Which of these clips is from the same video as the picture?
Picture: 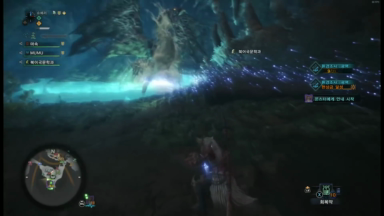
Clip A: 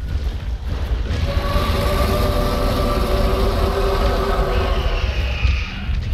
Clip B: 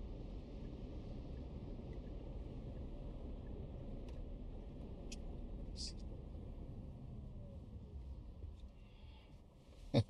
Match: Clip A